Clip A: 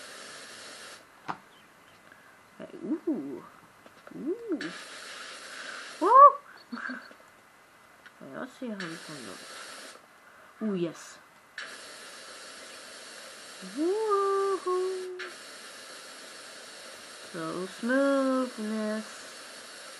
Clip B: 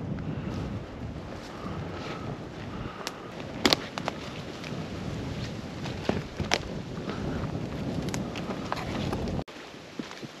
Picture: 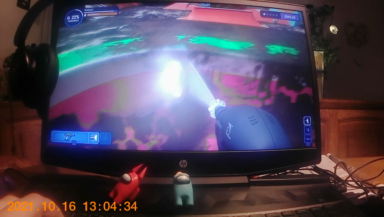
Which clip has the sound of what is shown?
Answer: A